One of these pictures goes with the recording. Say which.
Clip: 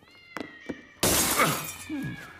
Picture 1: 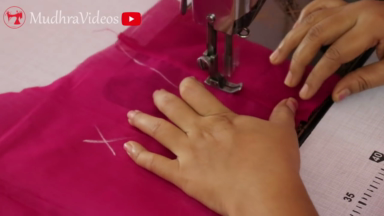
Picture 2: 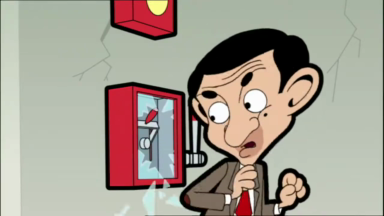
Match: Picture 2